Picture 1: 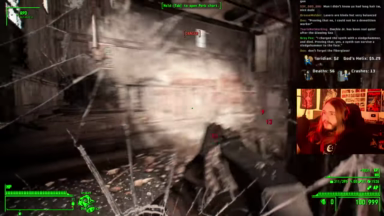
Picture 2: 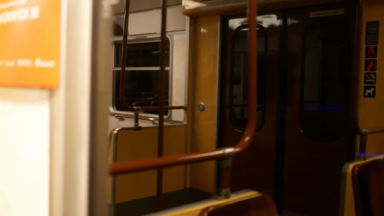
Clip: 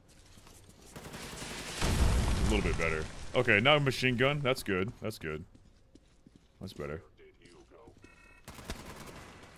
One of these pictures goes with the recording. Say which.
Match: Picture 1